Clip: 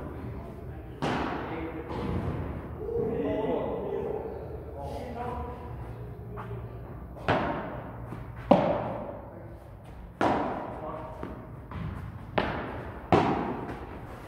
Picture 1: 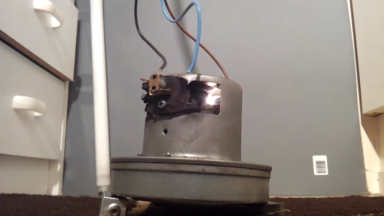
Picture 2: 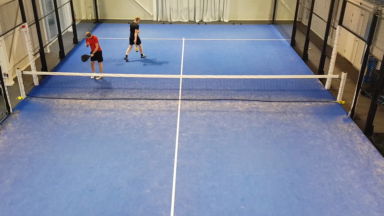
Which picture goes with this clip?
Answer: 2